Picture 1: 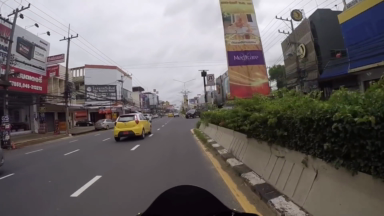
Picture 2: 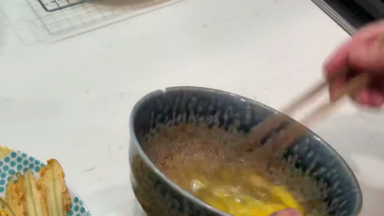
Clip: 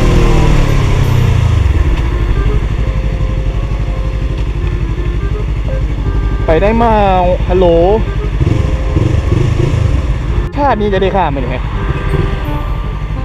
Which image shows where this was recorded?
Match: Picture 1